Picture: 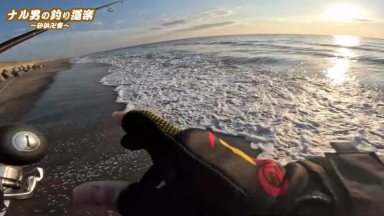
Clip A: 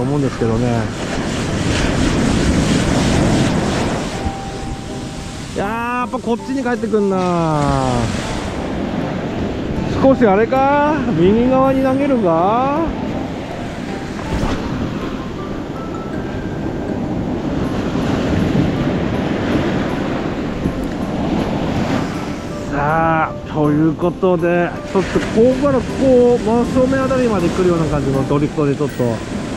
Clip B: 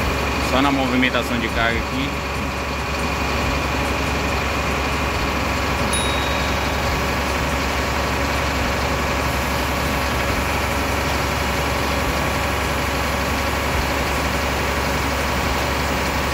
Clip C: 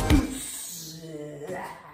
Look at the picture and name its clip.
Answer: A